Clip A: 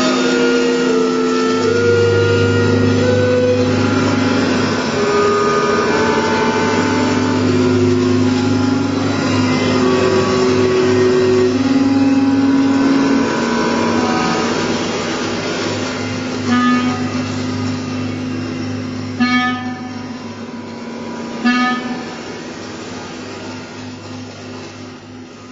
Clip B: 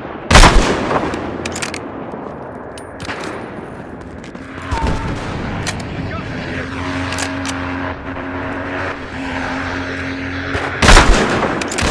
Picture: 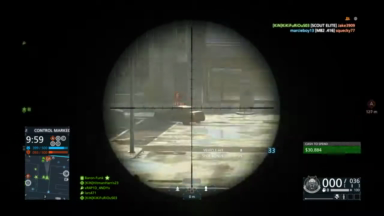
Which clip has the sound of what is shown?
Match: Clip B